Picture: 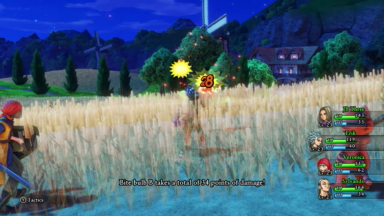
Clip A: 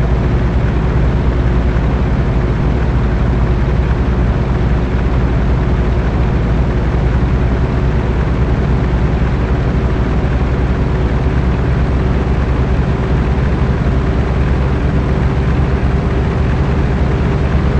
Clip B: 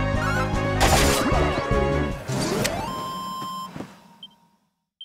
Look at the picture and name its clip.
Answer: B